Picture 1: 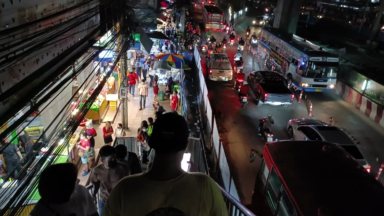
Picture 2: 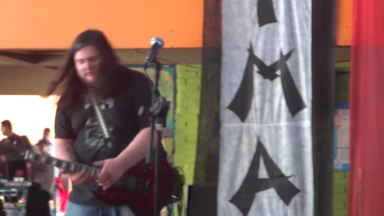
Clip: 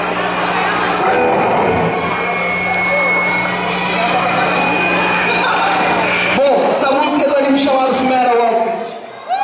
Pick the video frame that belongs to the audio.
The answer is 2